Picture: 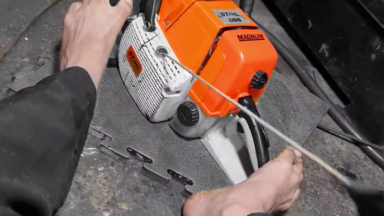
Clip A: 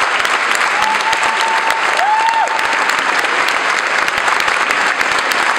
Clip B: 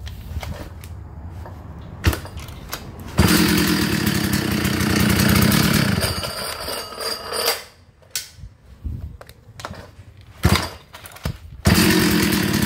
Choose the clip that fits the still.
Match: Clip B